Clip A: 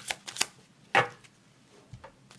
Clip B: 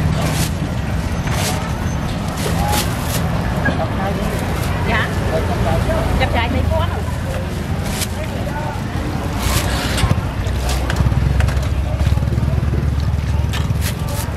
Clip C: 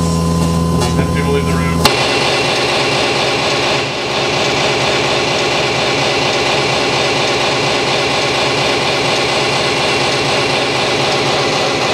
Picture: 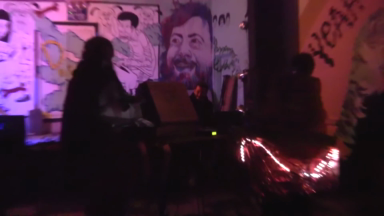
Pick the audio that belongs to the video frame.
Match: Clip C